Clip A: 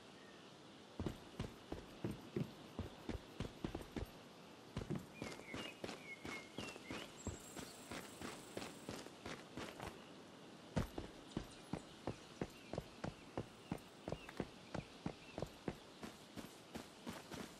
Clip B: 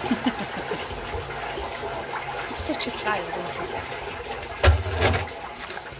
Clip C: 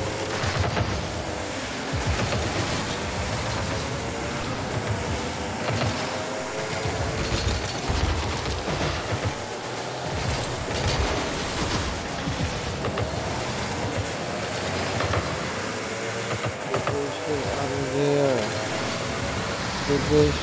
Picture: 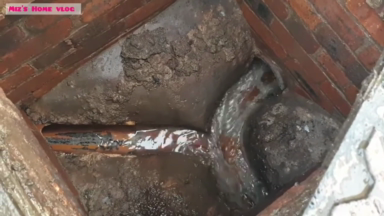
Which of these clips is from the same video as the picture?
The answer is B